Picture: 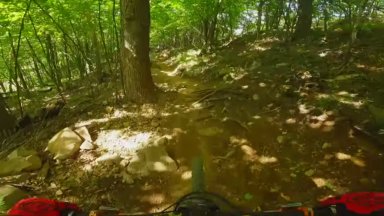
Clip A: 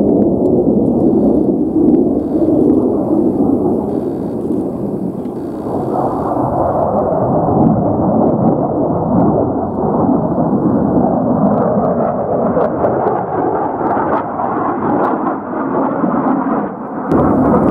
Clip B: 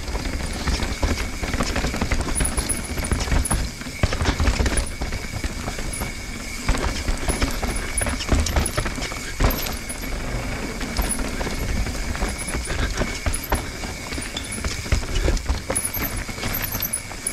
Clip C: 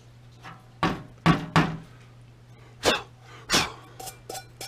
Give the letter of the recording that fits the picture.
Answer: B